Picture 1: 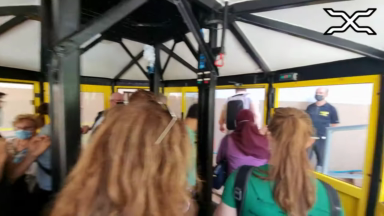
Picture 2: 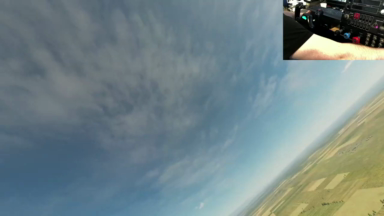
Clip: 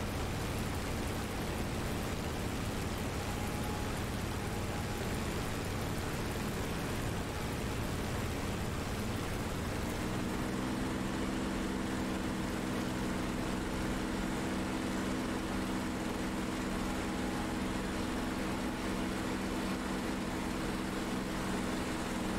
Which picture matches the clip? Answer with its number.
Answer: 2